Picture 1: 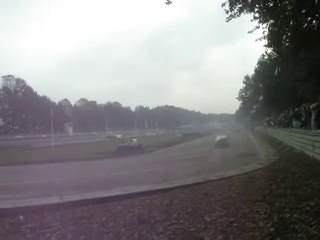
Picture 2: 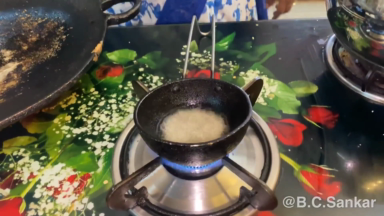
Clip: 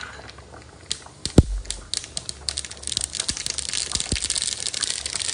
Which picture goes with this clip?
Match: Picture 2